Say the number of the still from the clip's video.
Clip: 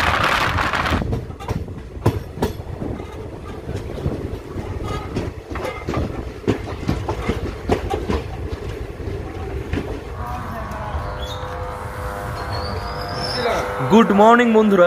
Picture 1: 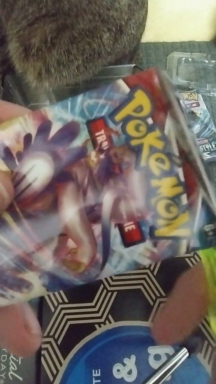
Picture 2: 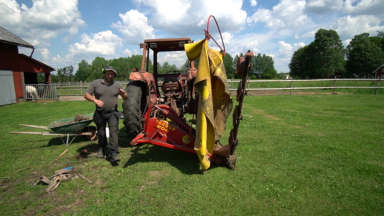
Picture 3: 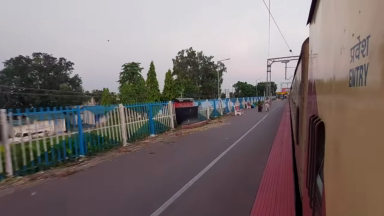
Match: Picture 3